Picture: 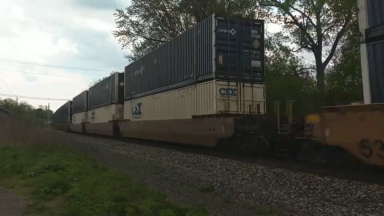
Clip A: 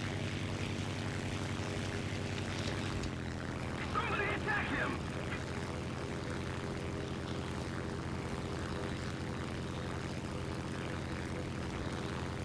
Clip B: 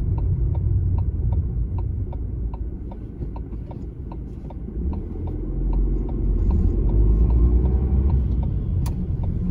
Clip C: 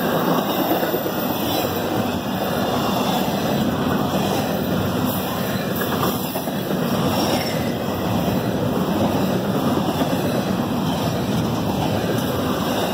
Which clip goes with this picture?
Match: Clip C